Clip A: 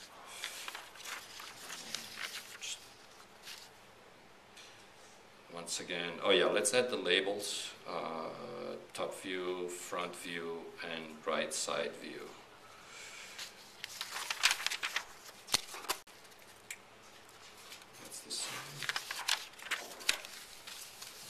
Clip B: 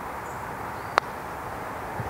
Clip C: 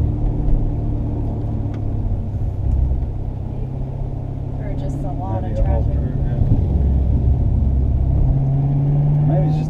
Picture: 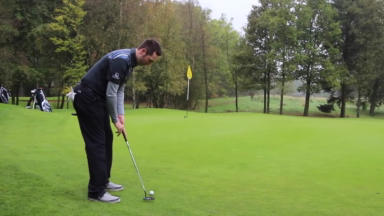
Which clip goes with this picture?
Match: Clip B